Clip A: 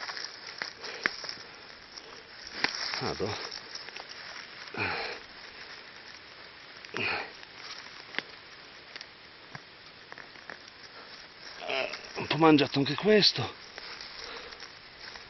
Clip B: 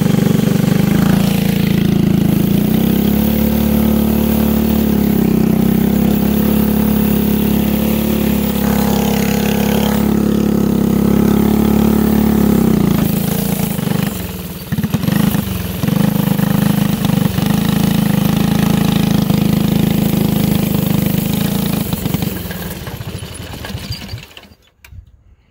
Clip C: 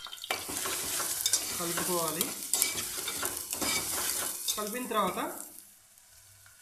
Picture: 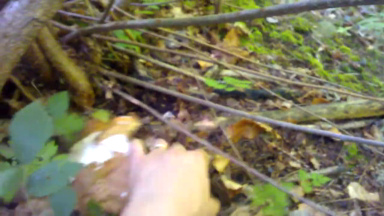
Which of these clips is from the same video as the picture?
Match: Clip A